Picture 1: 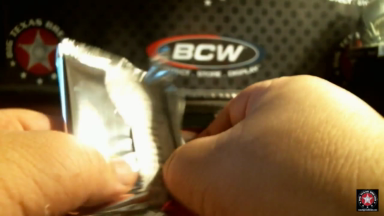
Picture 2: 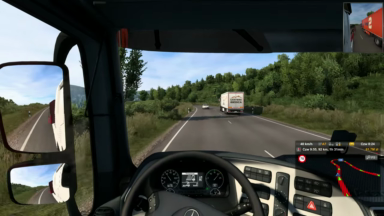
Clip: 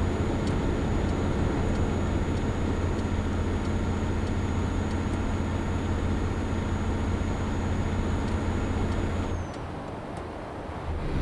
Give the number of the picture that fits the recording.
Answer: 2